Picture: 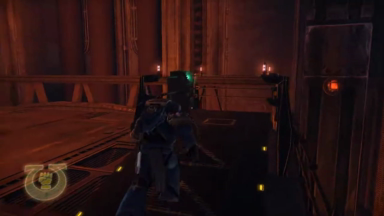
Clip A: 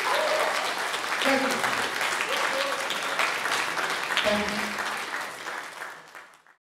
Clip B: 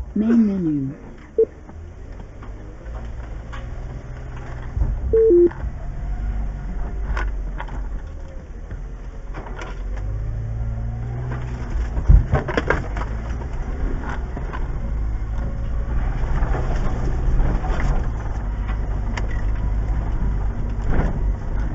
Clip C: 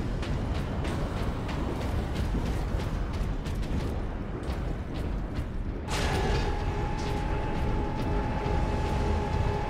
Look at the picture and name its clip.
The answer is C